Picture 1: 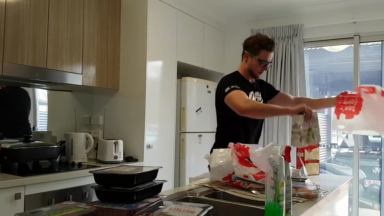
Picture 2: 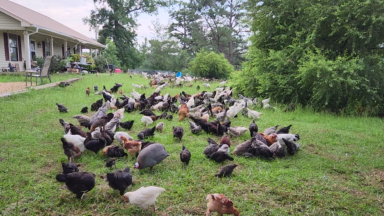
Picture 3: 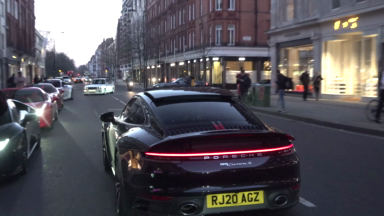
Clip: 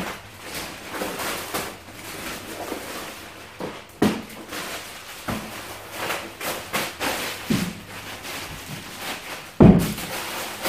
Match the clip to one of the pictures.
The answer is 1